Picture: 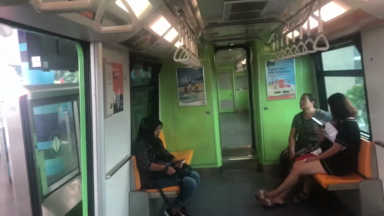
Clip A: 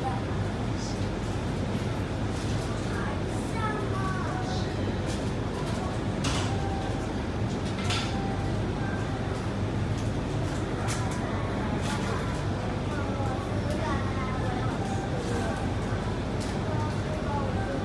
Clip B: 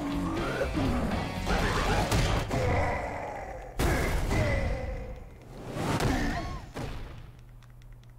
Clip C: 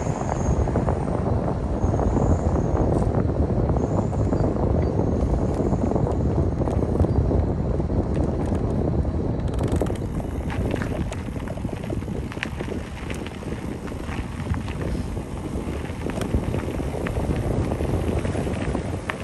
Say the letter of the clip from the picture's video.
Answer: A